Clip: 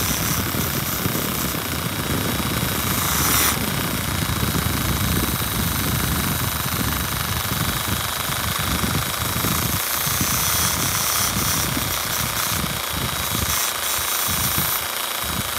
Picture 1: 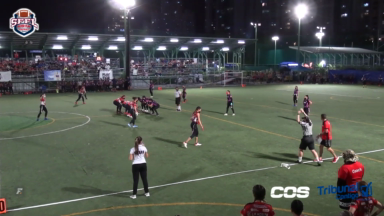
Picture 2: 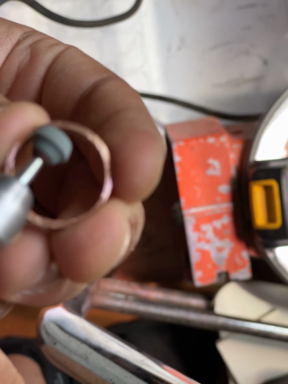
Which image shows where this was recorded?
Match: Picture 2